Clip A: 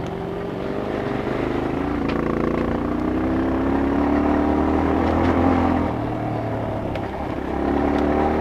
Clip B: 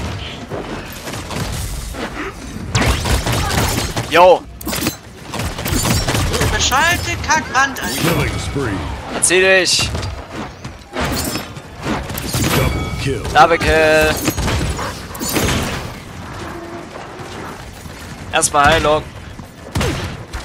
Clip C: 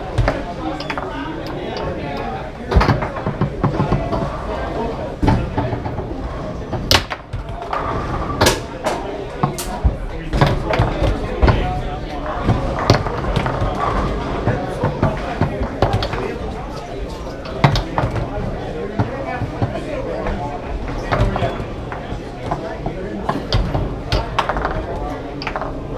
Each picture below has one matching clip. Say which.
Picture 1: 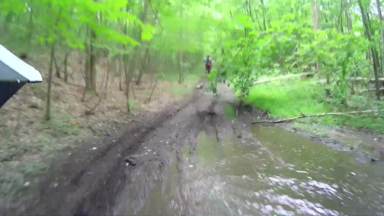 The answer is A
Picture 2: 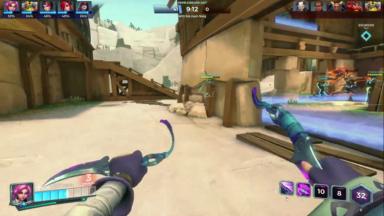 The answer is B